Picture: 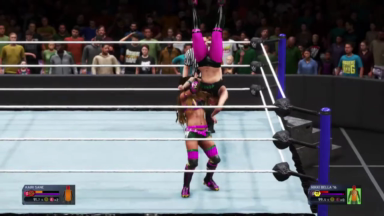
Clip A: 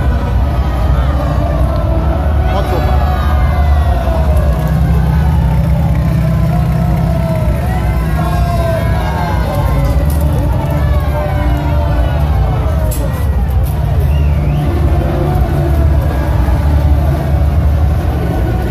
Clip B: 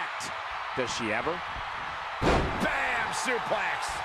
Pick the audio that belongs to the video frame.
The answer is B